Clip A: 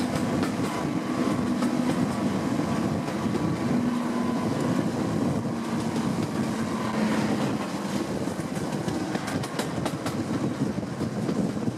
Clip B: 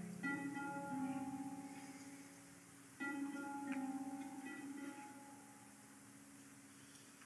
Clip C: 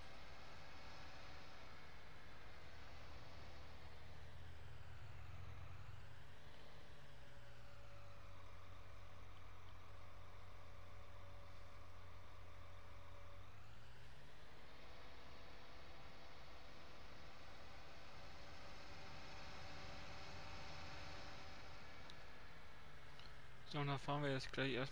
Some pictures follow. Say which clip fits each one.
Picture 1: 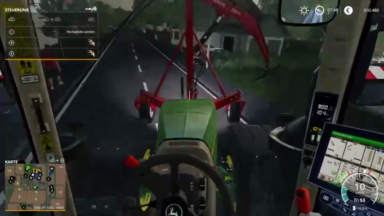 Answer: C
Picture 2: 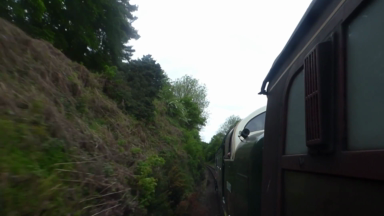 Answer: A